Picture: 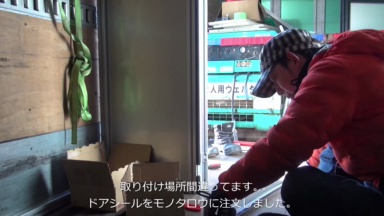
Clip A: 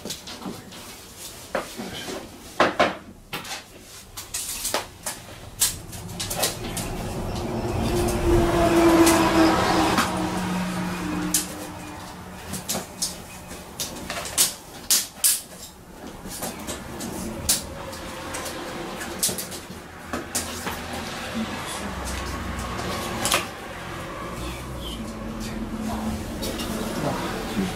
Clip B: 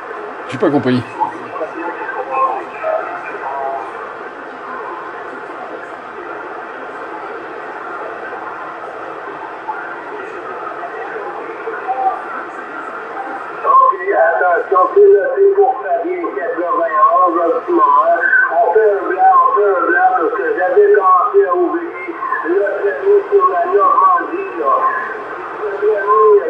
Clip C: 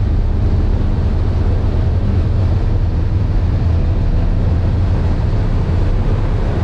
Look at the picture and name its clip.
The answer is A